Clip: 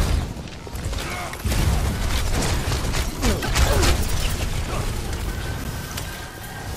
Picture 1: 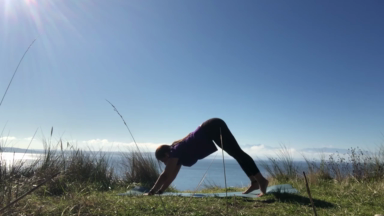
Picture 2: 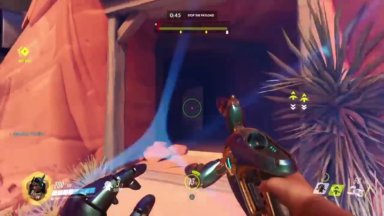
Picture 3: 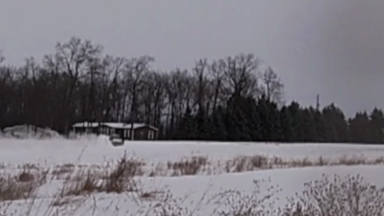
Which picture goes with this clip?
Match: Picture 2